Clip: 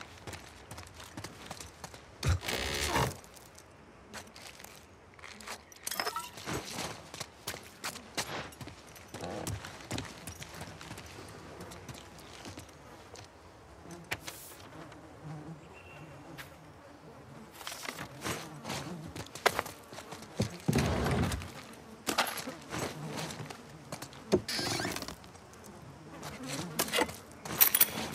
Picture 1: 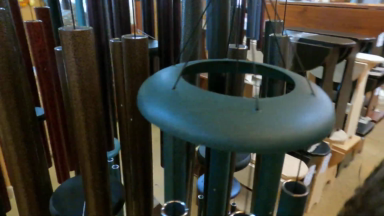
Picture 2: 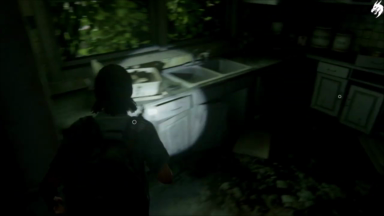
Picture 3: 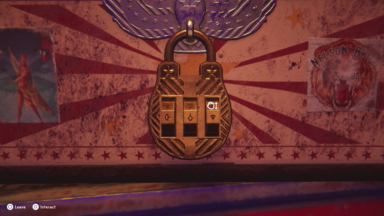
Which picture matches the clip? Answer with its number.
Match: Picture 2